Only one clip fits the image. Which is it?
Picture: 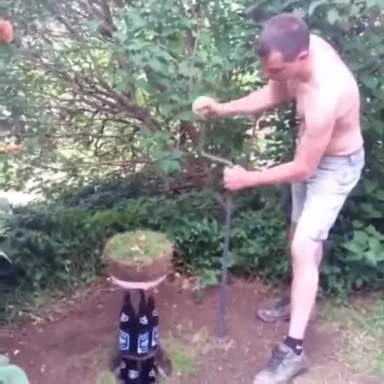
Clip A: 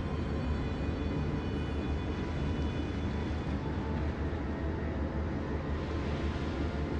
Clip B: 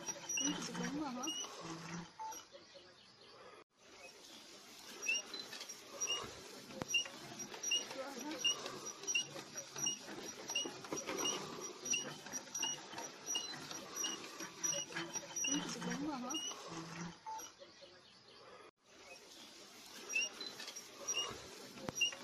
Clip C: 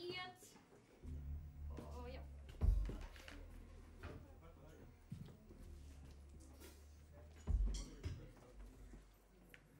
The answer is B